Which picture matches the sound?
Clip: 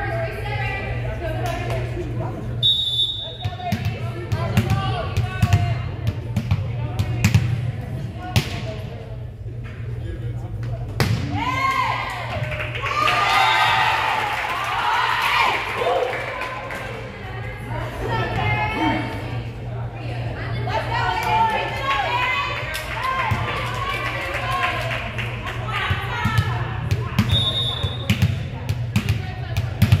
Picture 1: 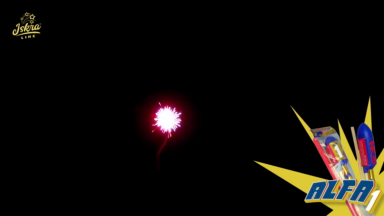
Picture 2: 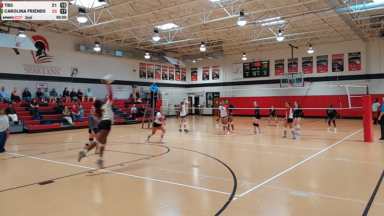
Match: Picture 2